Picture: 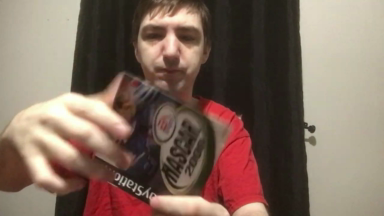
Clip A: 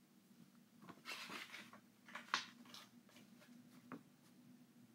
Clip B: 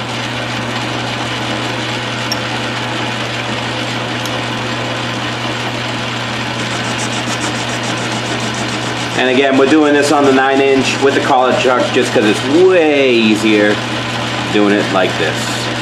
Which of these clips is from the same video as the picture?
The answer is A